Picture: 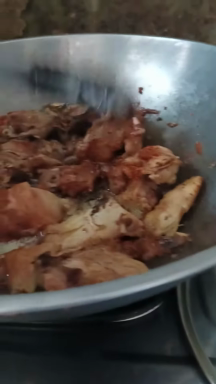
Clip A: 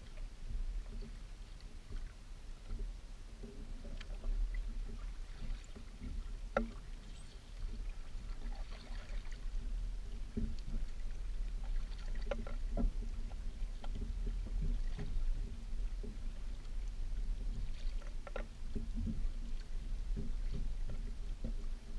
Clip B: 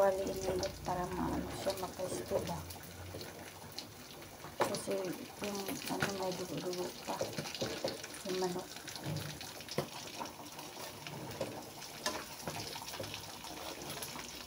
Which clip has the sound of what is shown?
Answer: B